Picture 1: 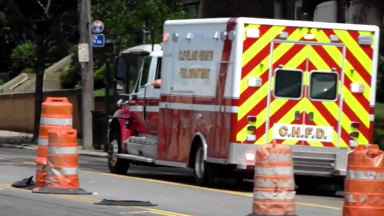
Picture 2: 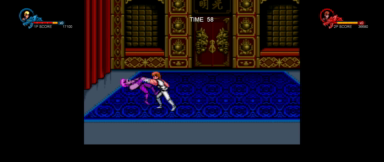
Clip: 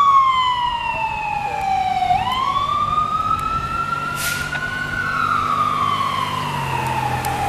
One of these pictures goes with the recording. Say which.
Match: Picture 1